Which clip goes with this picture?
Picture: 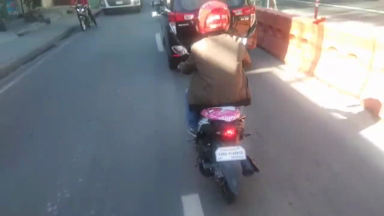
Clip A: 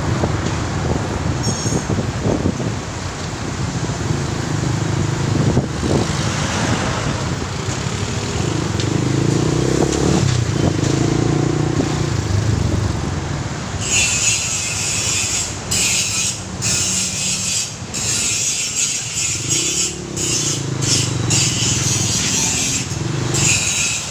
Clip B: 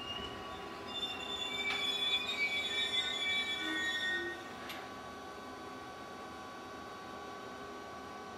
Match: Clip A